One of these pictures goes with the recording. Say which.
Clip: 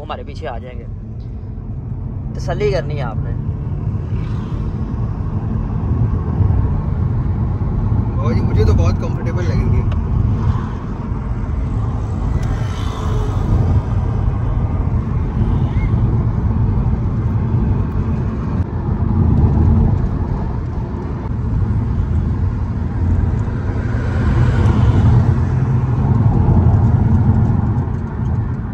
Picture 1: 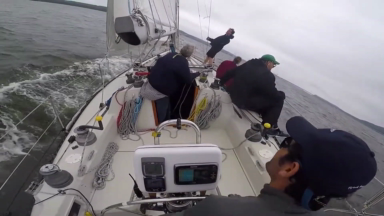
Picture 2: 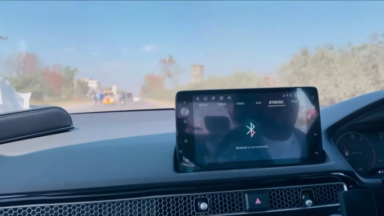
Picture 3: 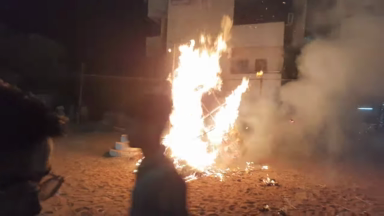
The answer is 2